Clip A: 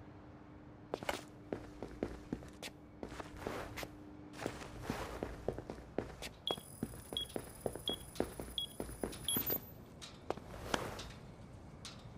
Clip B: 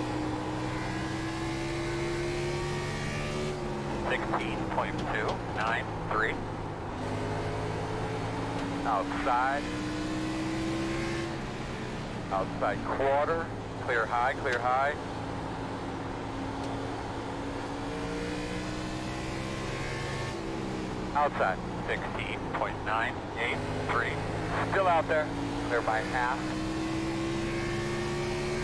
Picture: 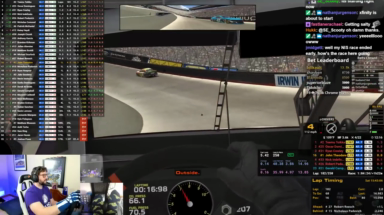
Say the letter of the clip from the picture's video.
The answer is B